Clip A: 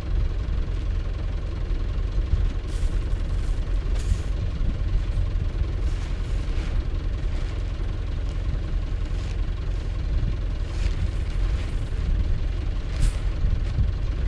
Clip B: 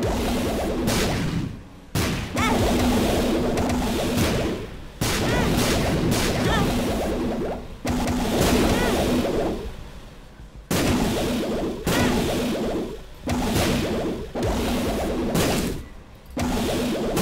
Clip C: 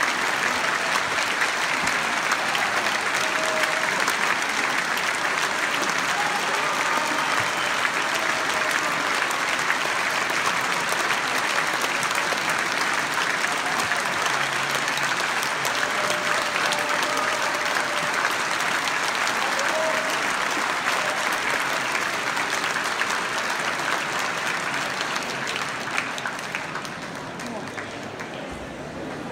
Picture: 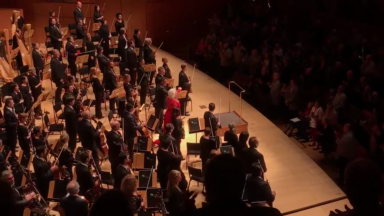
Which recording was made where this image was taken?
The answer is C